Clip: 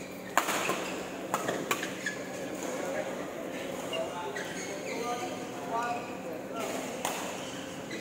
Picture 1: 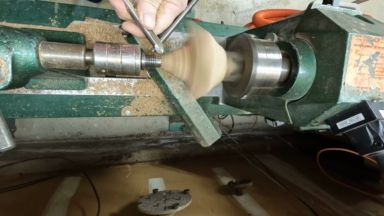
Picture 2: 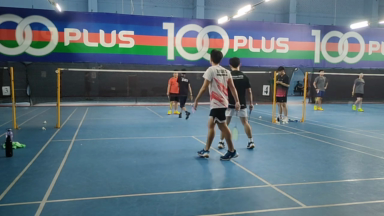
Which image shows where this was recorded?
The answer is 2